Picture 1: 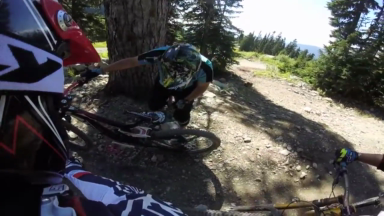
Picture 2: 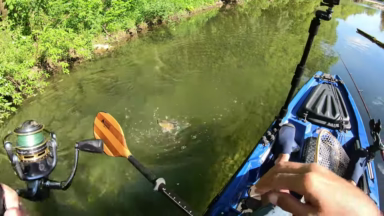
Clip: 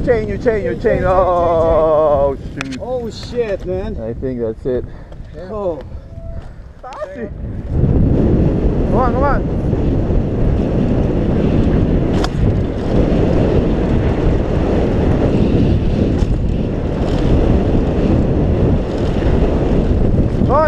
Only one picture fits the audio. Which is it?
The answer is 1